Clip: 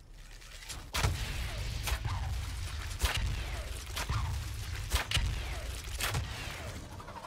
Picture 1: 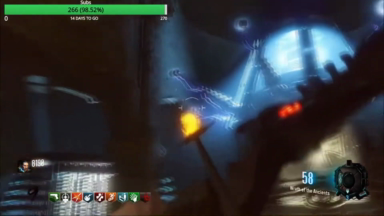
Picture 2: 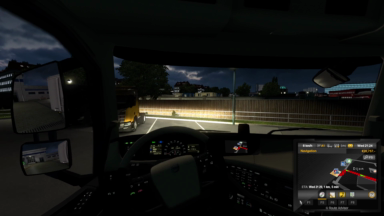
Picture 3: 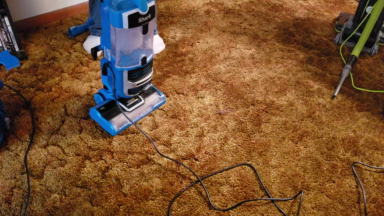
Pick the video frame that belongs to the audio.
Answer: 1